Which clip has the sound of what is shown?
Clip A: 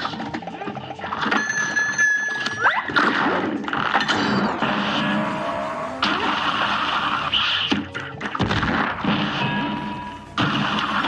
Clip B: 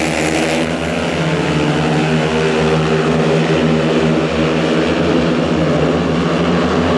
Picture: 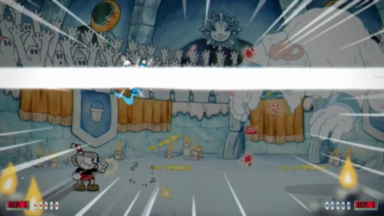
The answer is A